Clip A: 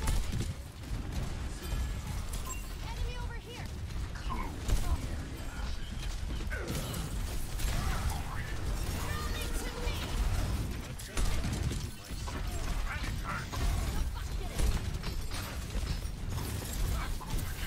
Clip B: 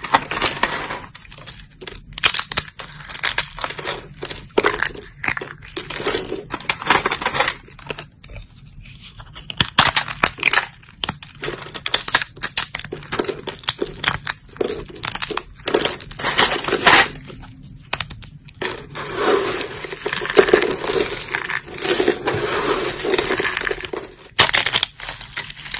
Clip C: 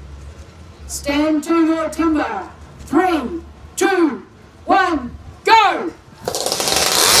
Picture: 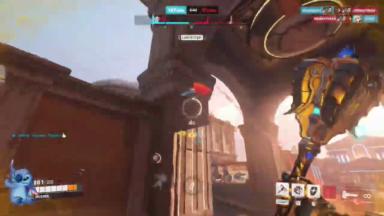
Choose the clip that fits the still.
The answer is A